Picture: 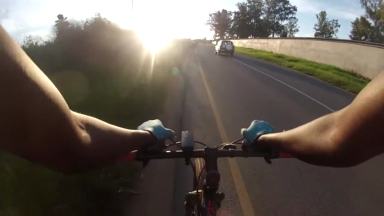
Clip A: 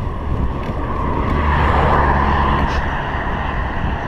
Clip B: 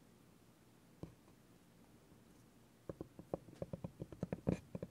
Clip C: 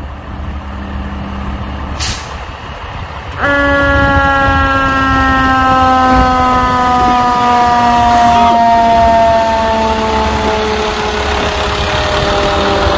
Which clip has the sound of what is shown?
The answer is A